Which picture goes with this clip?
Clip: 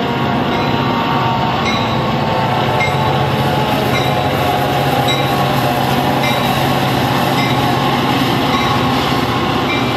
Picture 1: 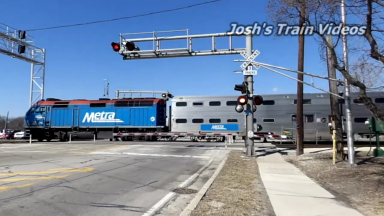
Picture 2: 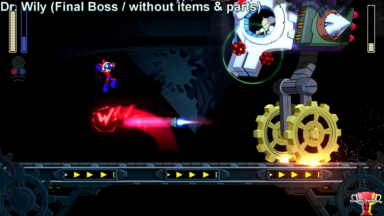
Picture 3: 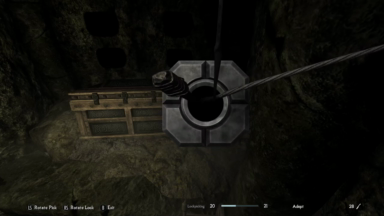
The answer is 1